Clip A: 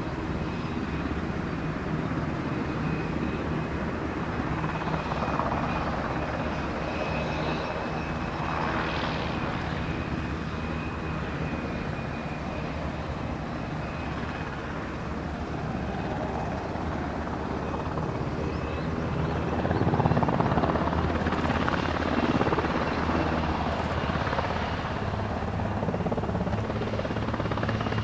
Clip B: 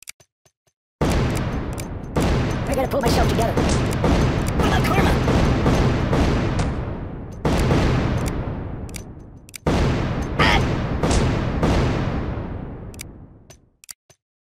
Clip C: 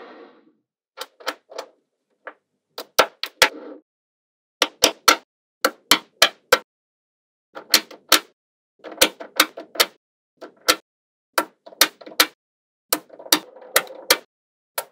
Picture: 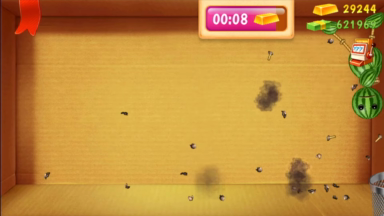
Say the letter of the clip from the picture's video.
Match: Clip B